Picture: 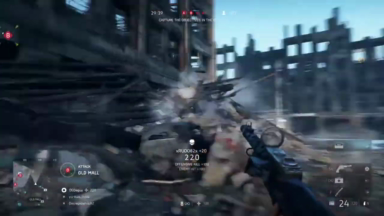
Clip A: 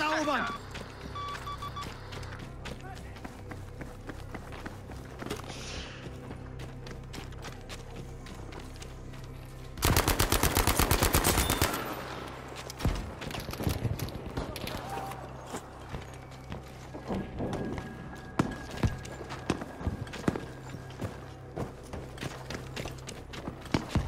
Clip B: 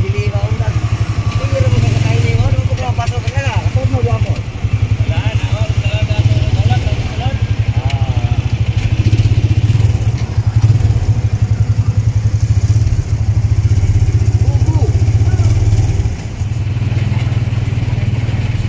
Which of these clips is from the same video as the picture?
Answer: A